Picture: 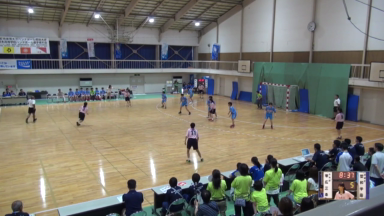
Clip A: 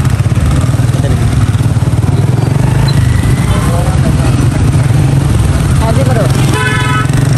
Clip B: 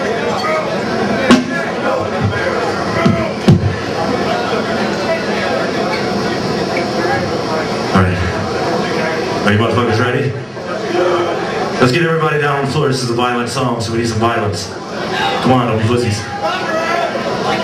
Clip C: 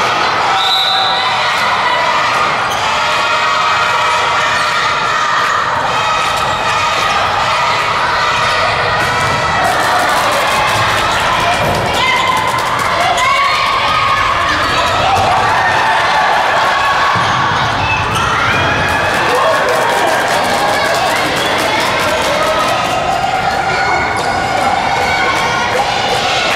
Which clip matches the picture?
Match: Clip C